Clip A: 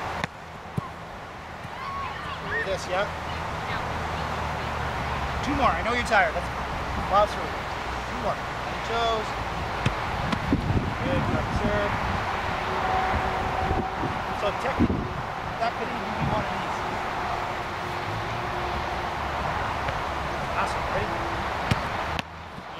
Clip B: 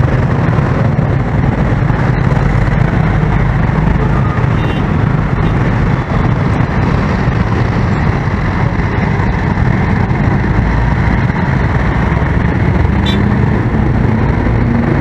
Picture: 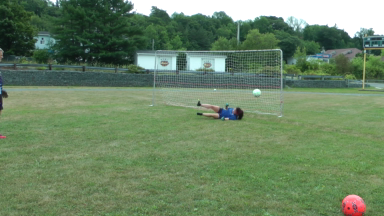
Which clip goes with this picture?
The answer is A